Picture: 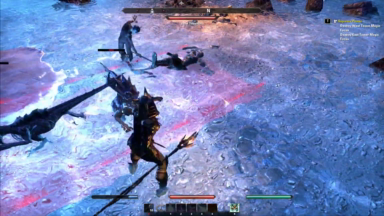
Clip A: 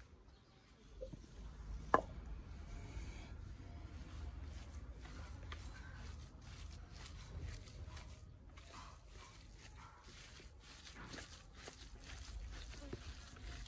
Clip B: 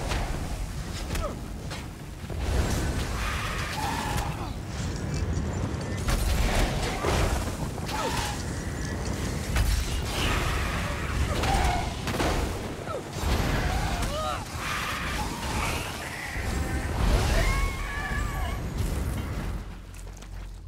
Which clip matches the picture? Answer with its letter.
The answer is B